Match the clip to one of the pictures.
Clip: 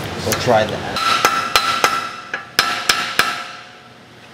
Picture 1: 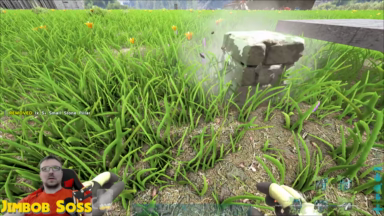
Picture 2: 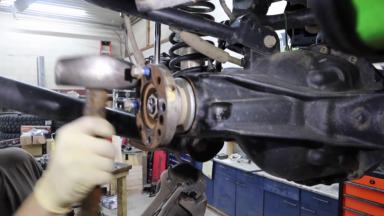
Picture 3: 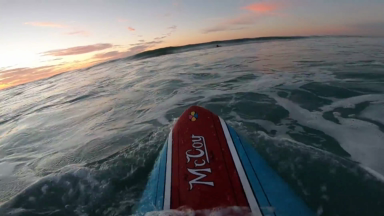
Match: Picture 2